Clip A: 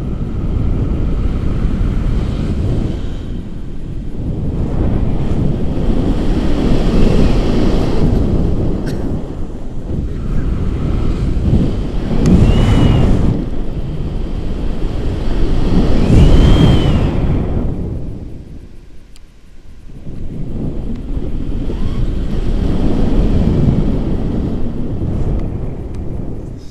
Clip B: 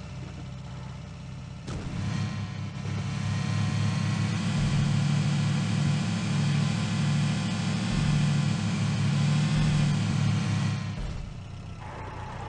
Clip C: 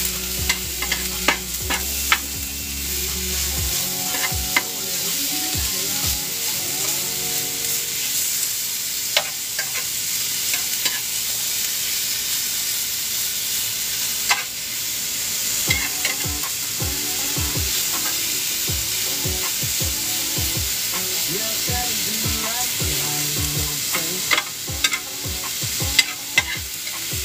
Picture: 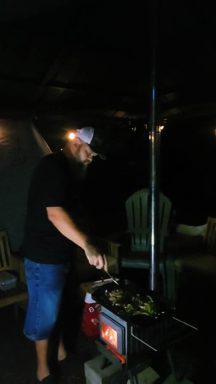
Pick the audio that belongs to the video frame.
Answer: C